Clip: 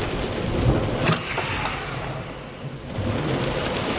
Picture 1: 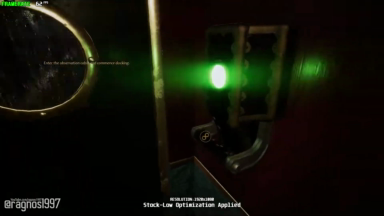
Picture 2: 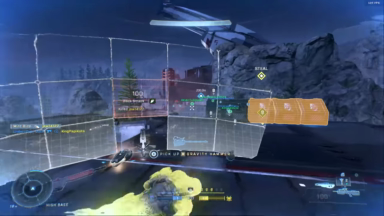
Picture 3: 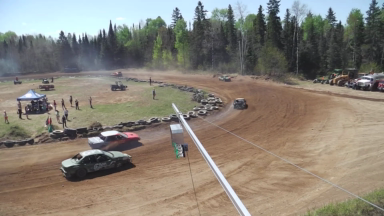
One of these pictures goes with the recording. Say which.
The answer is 1